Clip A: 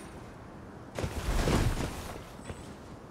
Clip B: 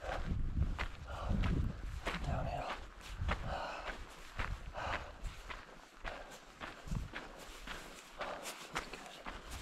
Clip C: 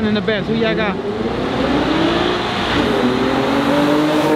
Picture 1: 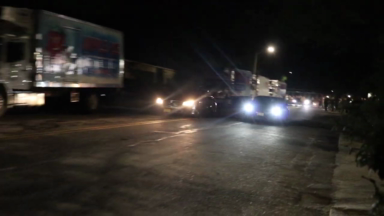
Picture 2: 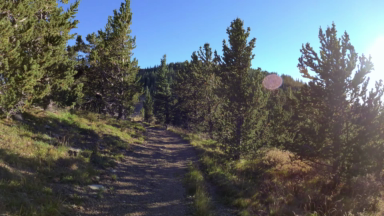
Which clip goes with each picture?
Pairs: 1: C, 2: B